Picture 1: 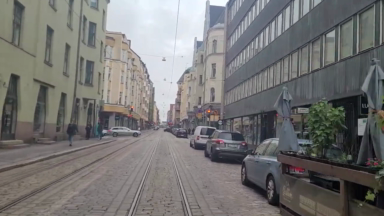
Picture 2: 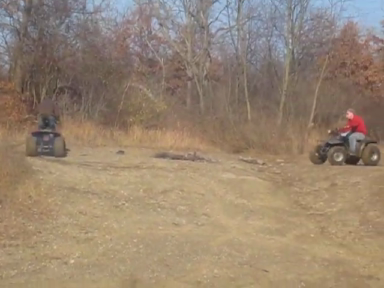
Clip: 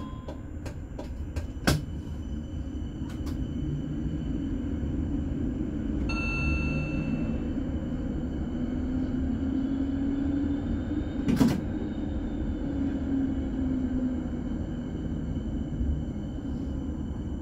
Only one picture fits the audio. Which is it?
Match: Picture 1